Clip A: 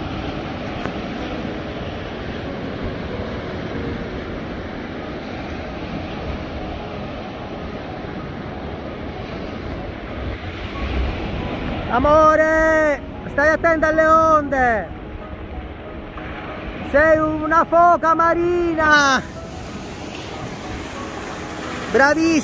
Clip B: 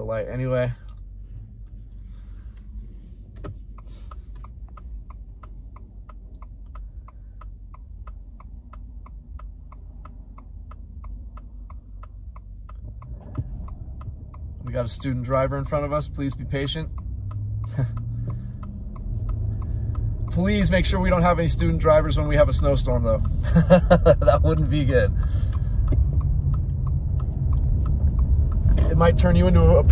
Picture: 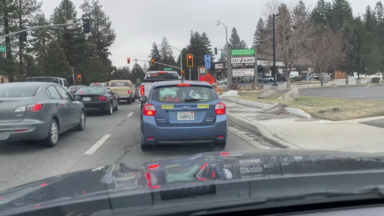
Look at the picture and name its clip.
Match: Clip B